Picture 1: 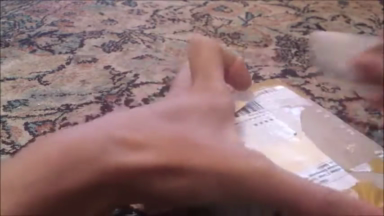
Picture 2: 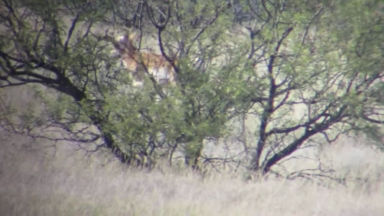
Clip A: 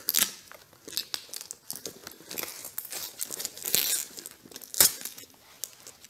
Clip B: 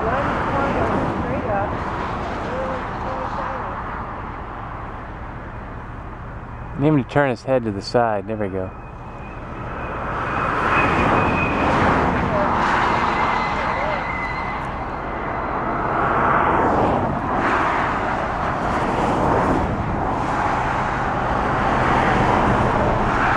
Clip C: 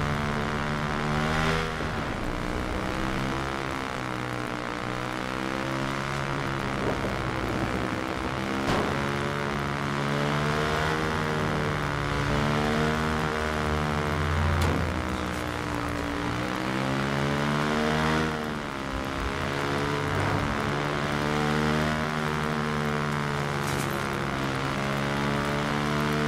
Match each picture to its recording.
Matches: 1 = A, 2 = B